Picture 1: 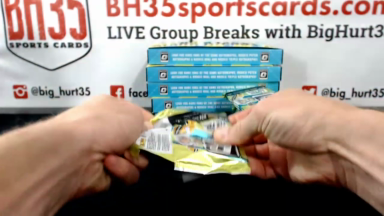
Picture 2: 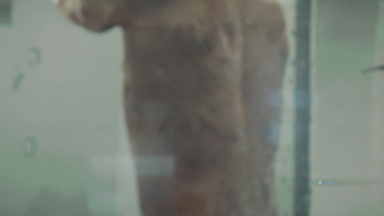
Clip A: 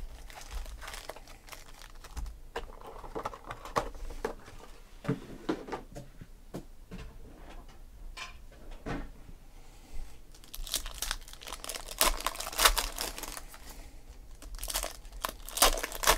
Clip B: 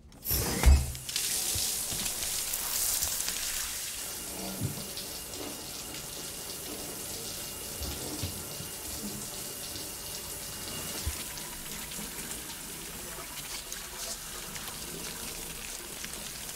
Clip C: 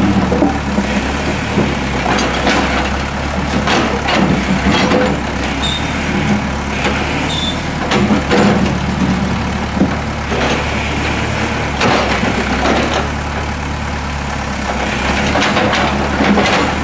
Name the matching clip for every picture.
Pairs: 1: A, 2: B